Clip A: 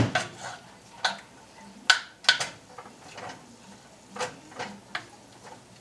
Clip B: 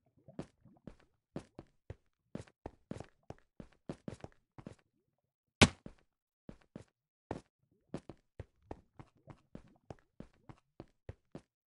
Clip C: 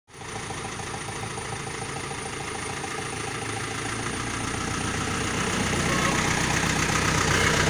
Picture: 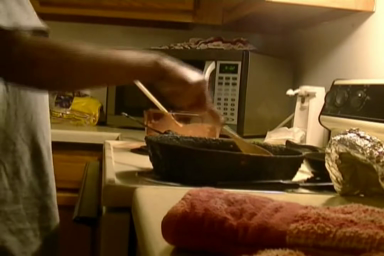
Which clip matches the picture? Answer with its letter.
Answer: A